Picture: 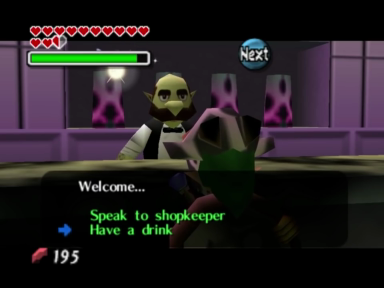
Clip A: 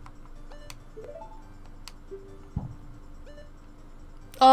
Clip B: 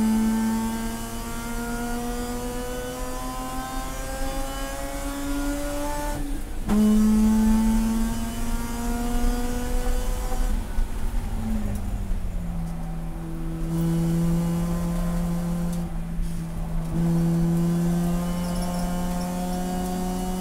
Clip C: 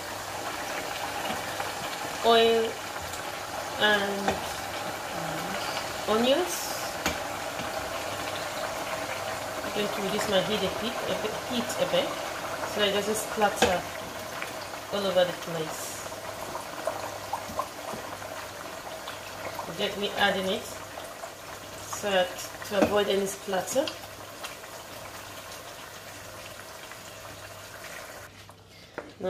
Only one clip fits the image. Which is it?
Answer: A